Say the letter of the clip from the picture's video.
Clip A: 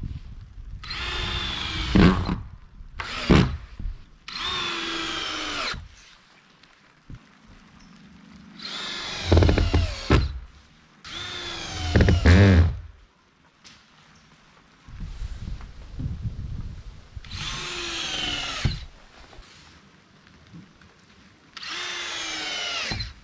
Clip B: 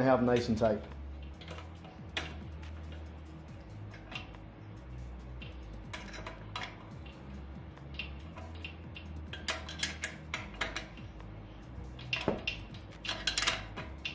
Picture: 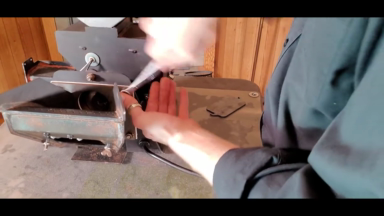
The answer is B